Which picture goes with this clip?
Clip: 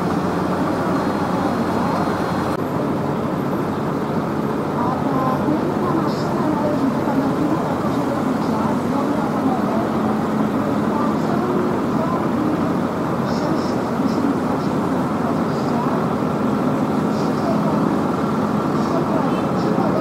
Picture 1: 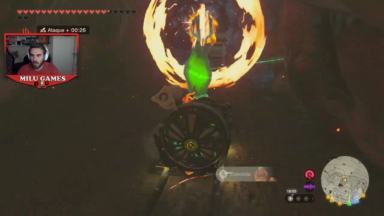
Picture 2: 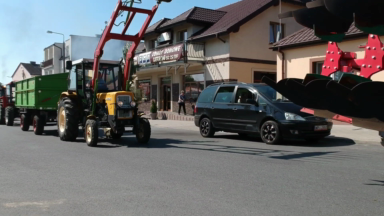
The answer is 2